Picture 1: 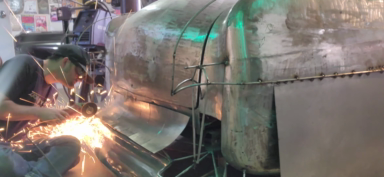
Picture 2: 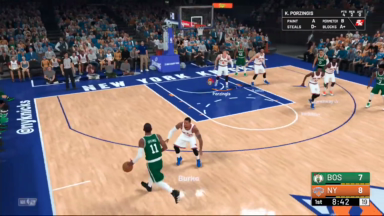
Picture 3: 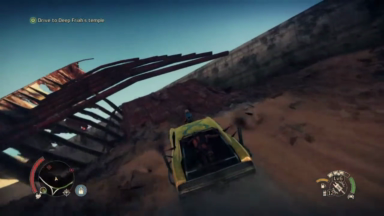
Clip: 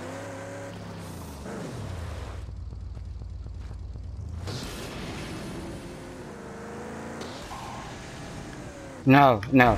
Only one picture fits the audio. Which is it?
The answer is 3